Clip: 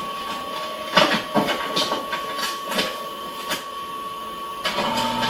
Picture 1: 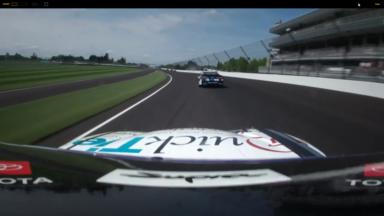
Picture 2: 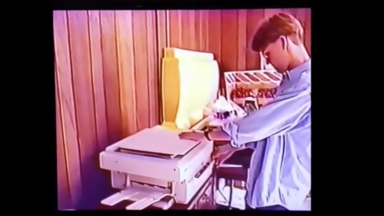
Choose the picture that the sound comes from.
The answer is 2